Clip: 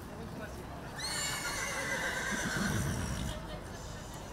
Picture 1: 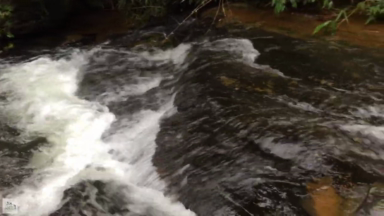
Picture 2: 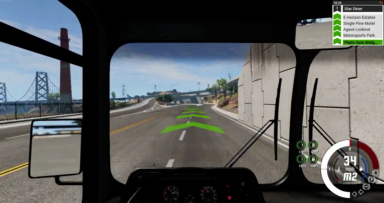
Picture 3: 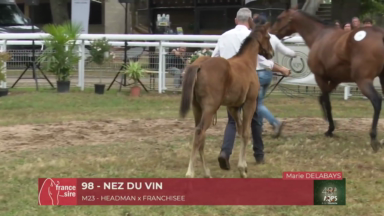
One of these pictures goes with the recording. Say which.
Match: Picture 3